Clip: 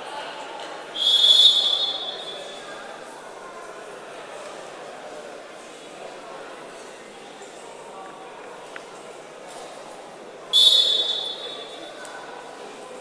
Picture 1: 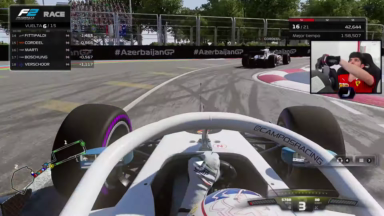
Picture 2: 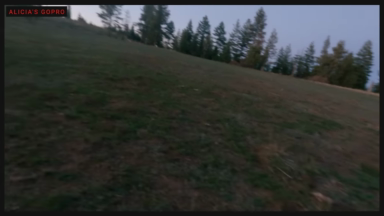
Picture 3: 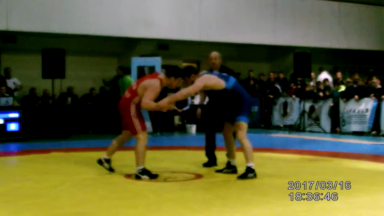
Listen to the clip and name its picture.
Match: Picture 3